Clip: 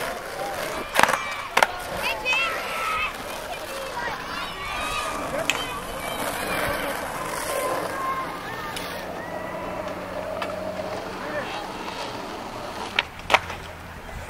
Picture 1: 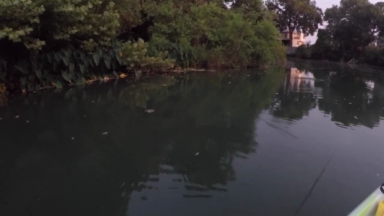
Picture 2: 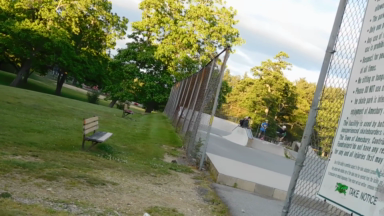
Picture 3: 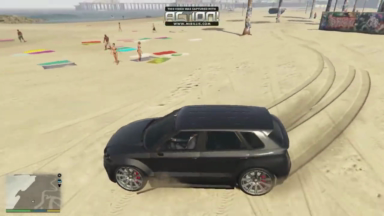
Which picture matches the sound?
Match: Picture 2